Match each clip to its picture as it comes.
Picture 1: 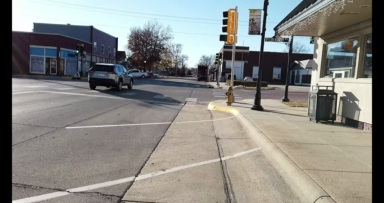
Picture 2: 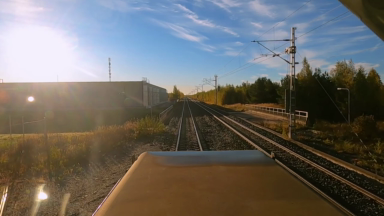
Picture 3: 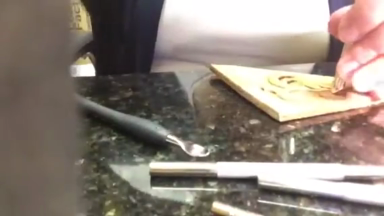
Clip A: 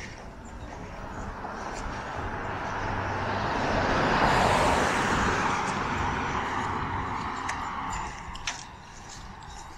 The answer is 1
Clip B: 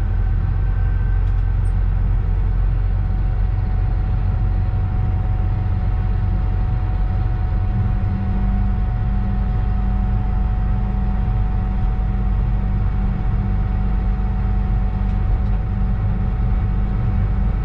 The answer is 2